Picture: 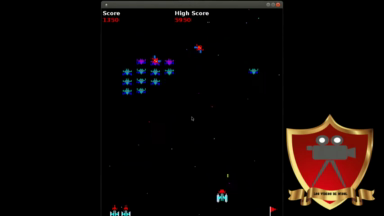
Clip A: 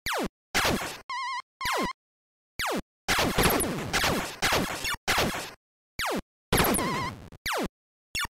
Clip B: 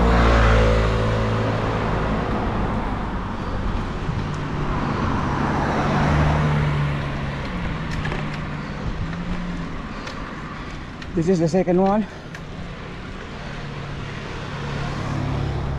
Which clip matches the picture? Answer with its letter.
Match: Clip A